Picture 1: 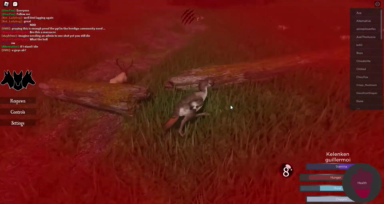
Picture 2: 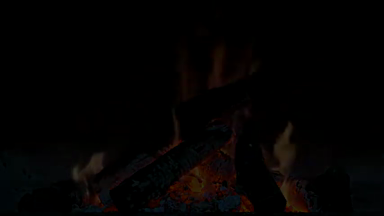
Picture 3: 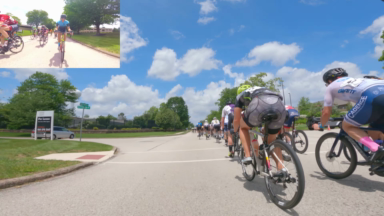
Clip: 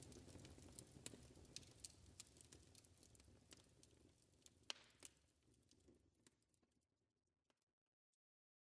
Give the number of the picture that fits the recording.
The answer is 2